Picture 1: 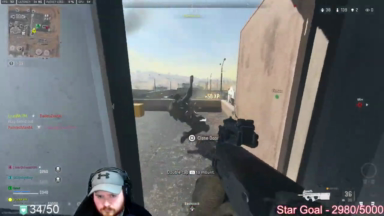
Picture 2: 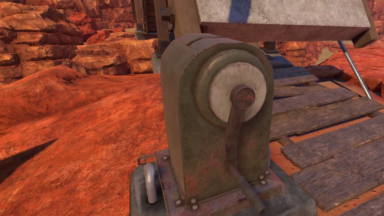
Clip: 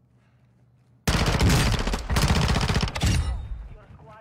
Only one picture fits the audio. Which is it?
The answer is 1